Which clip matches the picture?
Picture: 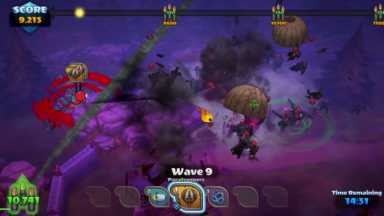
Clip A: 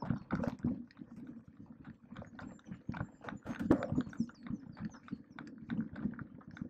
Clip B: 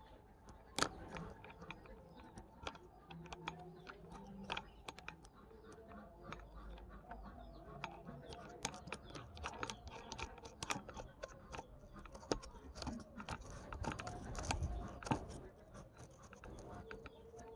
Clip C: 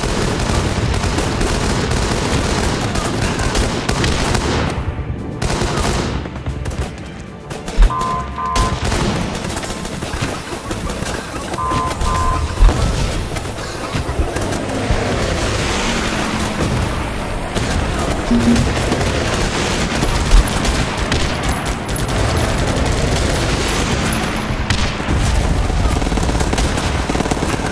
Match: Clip C